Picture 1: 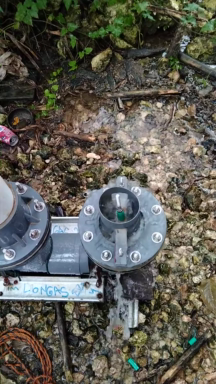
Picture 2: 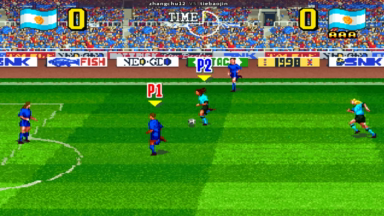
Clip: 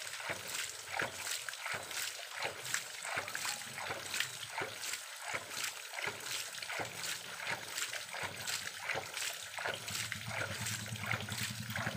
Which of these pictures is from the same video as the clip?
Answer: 1